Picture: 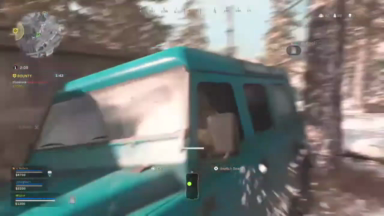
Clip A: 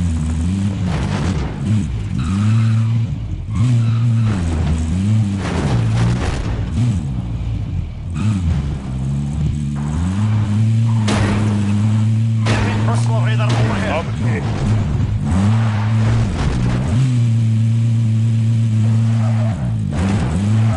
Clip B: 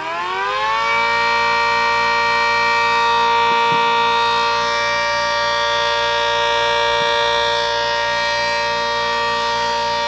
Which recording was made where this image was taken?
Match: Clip A